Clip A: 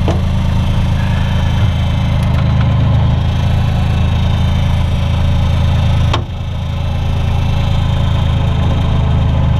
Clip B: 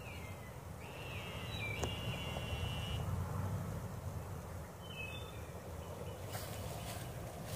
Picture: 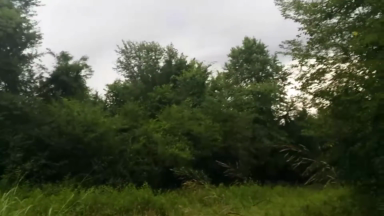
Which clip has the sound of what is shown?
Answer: B